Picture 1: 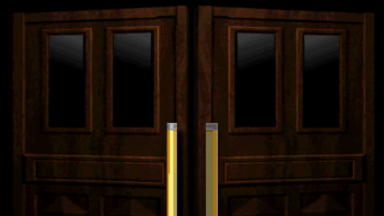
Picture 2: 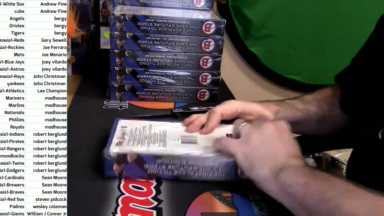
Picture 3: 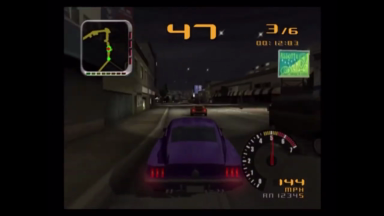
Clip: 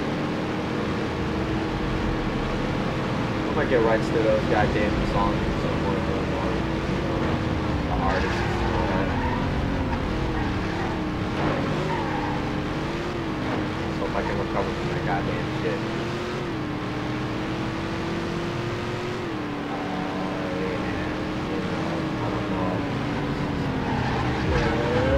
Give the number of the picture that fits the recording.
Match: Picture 3